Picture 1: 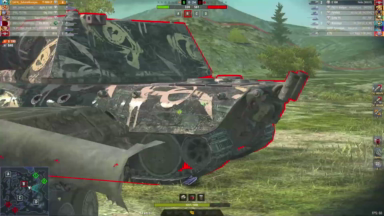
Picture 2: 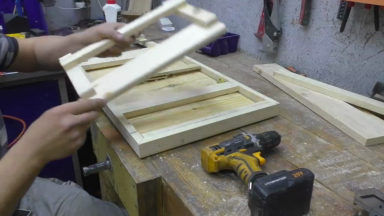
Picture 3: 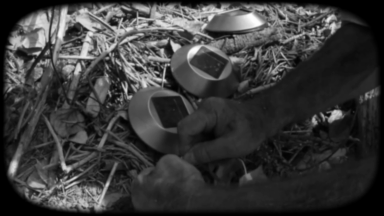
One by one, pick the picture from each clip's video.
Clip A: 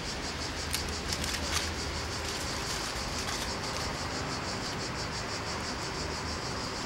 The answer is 3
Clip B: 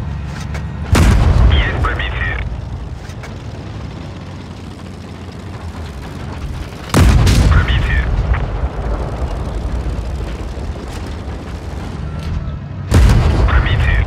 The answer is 1